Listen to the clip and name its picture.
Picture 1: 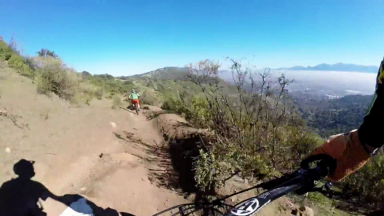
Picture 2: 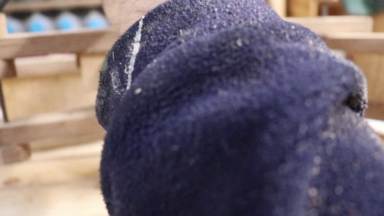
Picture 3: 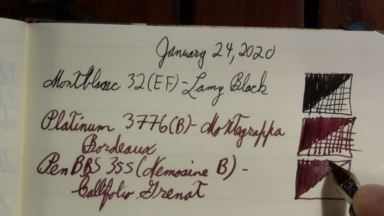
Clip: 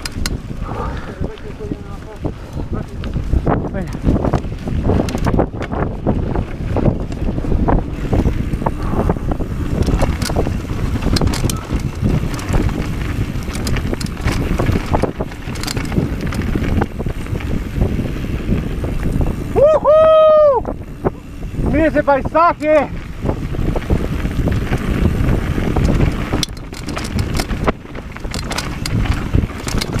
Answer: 1